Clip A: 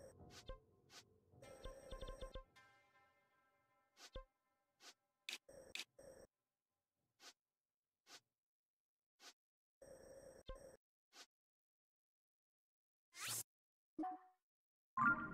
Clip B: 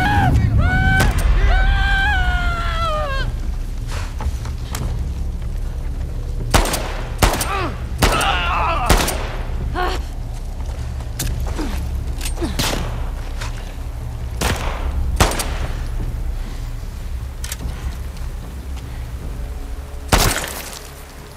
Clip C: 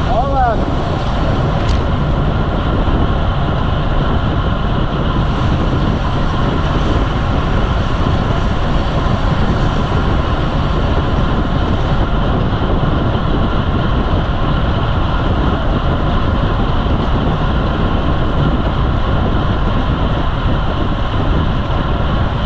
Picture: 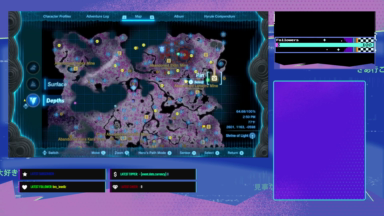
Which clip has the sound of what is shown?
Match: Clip A